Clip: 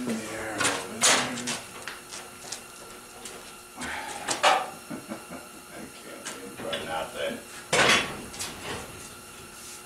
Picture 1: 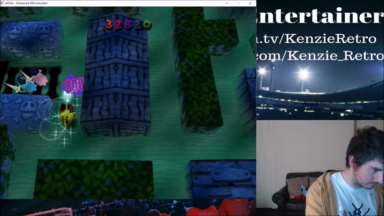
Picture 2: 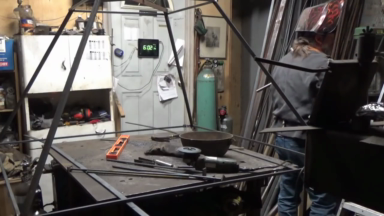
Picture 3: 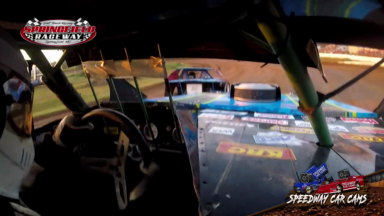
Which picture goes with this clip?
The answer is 2